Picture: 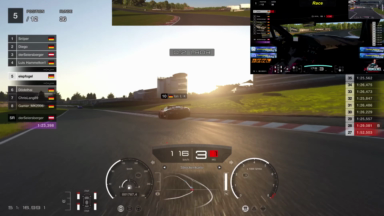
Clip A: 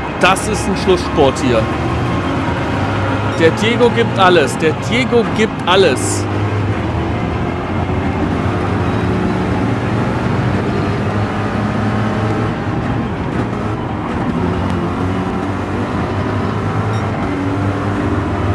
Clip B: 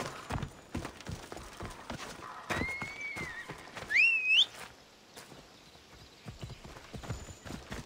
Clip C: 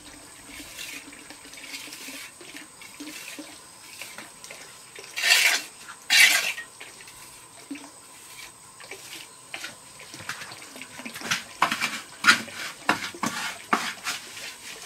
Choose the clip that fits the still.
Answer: A